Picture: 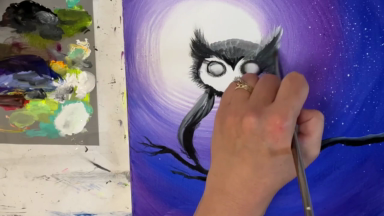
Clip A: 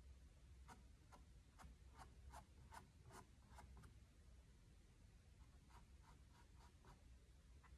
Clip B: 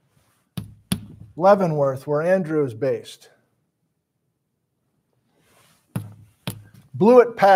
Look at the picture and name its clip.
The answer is A